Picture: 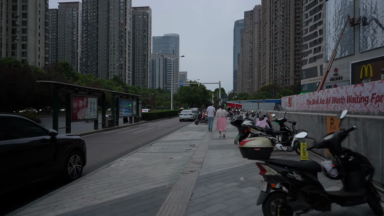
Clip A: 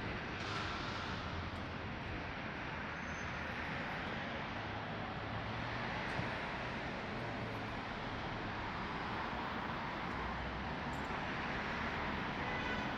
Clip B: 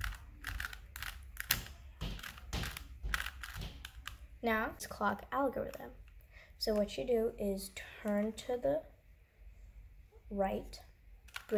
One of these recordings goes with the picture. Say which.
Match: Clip A